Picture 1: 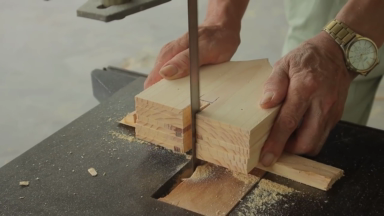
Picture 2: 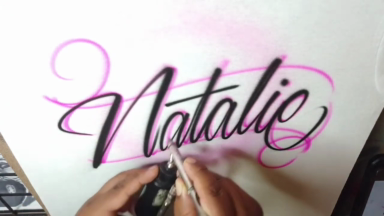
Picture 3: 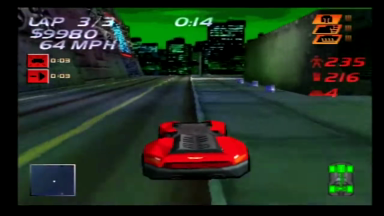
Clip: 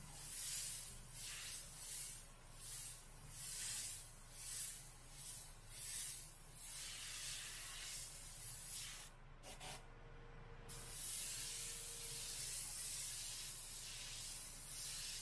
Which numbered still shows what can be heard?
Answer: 2